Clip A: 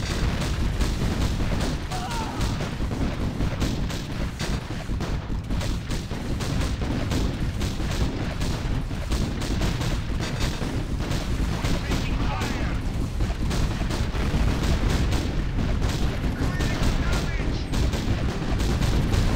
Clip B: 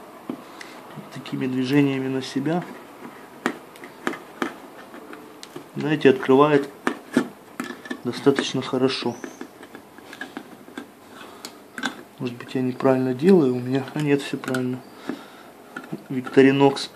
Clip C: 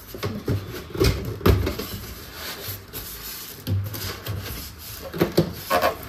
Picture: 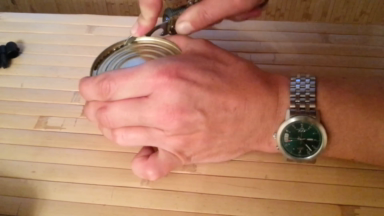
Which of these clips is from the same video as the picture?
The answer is B